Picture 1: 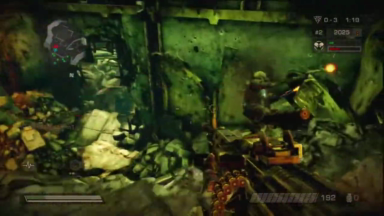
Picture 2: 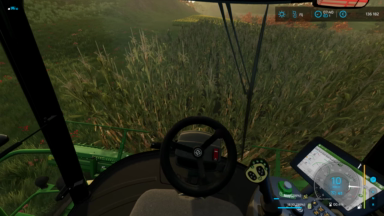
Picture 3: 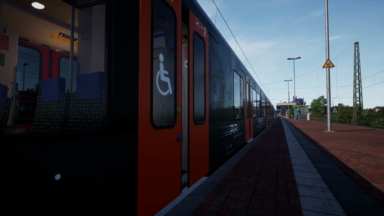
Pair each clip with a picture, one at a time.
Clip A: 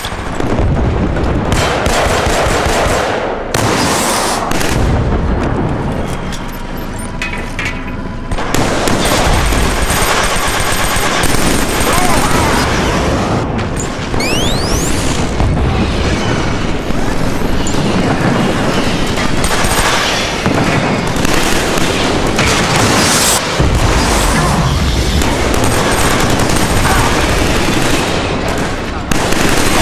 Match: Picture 1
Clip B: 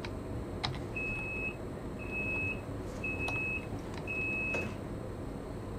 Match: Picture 3